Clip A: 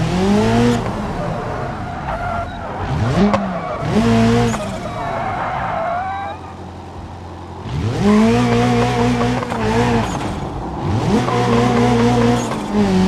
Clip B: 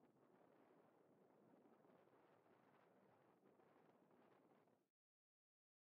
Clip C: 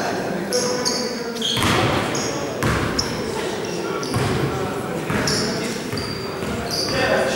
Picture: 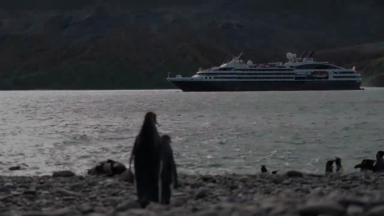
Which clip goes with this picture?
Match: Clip B